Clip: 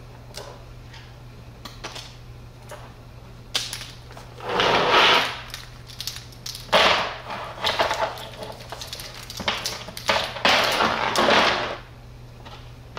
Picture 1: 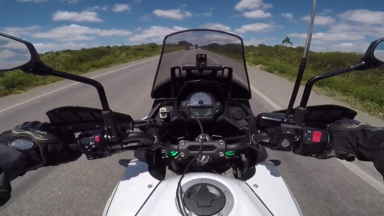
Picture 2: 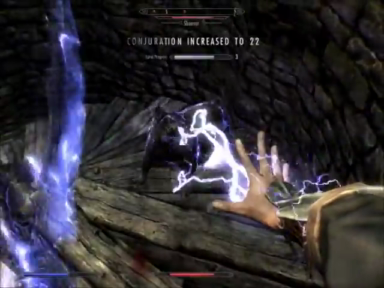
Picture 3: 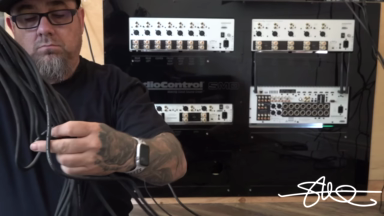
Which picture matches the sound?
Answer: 3